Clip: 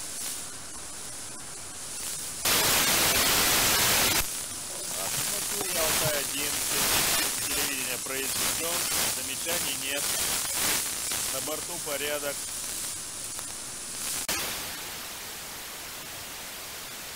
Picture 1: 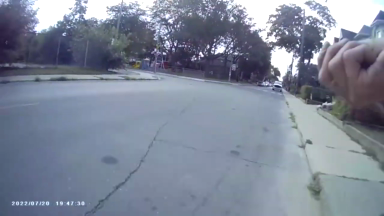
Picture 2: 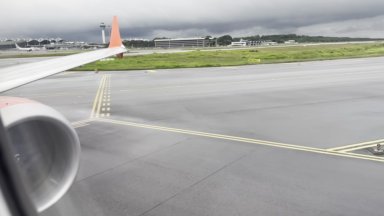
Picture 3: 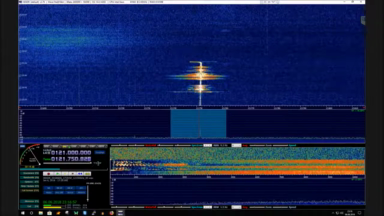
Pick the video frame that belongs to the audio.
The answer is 3